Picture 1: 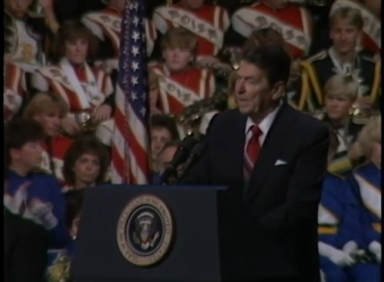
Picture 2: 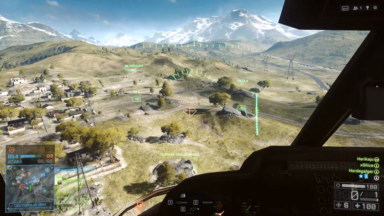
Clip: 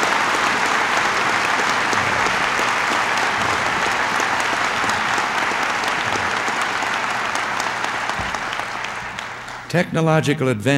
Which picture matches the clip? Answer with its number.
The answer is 1